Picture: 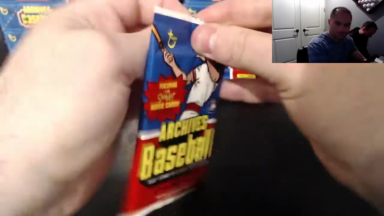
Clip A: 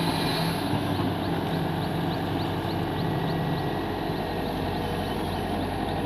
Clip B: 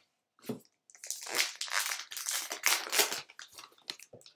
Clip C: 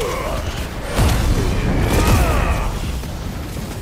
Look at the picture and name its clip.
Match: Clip B